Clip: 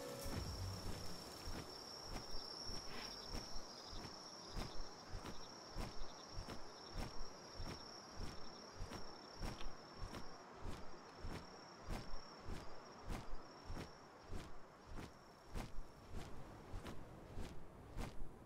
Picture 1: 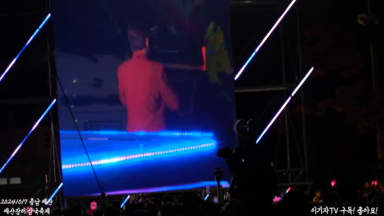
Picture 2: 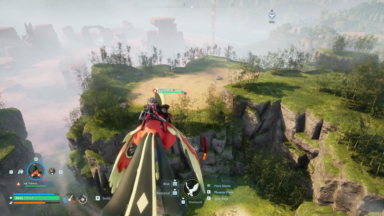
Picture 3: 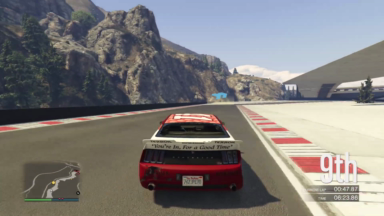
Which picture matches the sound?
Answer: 2